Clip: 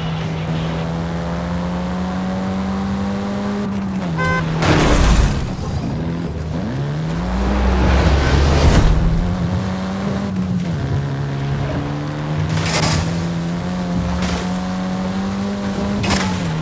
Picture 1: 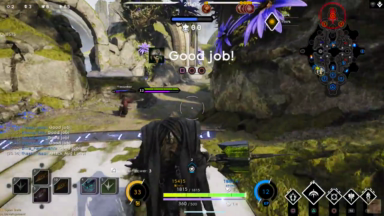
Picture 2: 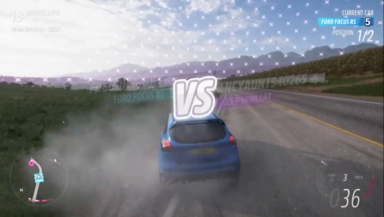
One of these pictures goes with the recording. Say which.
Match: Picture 2